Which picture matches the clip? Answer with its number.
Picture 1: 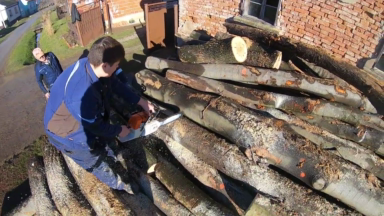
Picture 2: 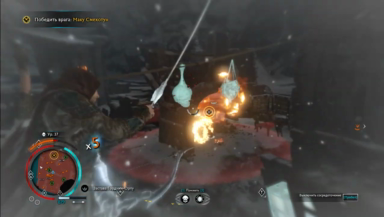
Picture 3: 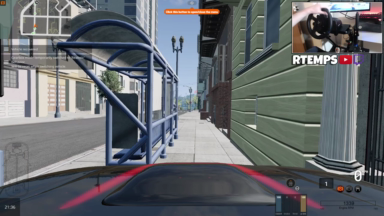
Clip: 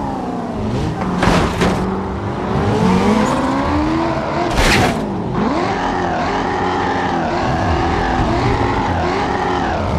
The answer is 3